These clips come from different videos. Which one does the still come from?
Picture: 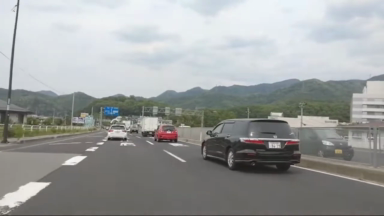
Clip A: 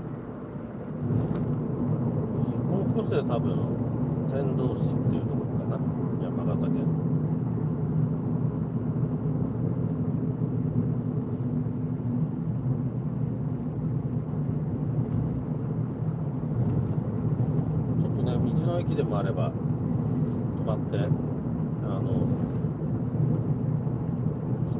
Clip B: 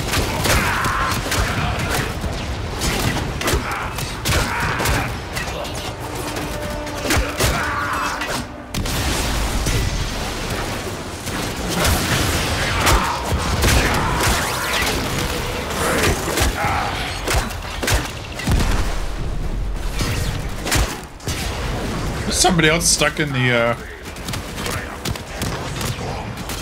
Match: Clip A